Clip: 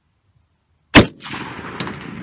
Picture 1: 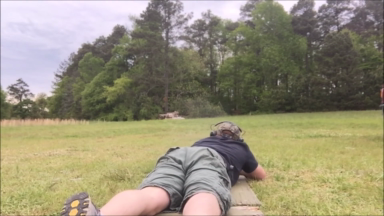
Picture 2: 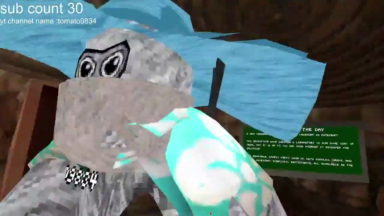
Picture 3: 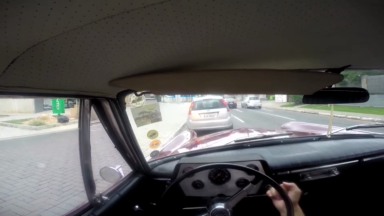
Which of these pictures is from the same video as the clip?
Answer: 1